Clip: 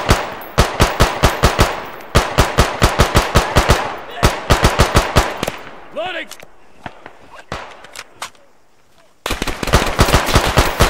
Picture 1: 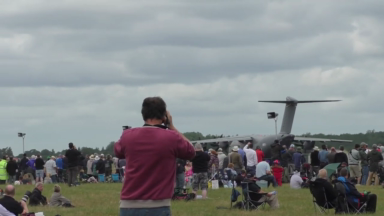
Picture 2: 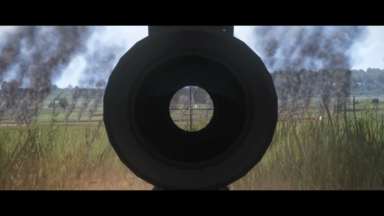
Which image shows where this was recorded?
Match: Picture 2